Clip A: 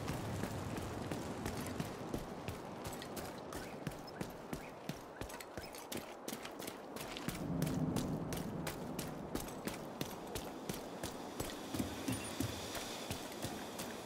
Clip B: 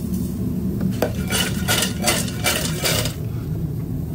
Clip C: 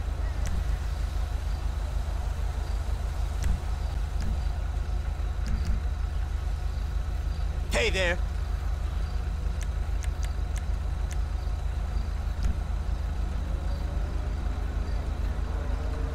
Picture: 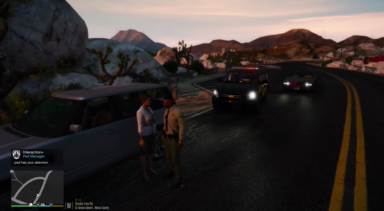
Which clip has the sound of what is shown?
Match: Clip C